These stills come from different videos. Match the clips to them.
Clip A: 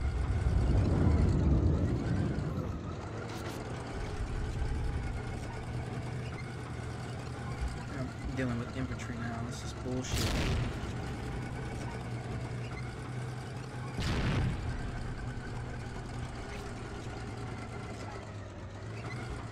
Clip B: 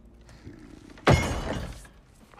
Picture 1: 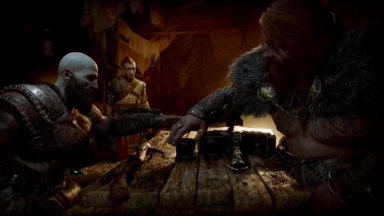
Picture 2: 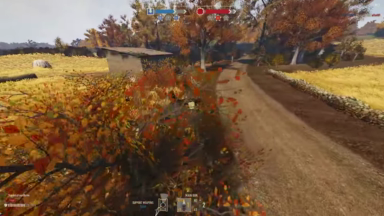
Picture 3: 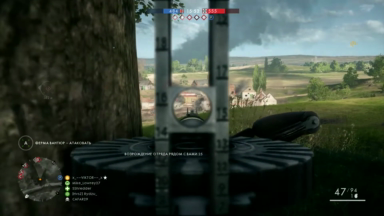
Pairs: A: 2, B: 1